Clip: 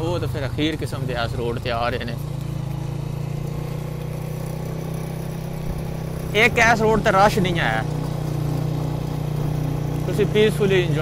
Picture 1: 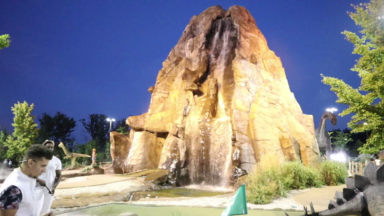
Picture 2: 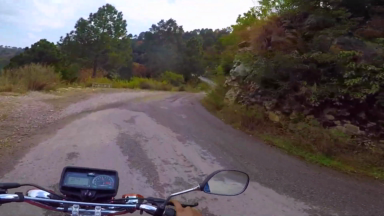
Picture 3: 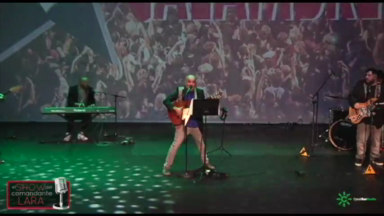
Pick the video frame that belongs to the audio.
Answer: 2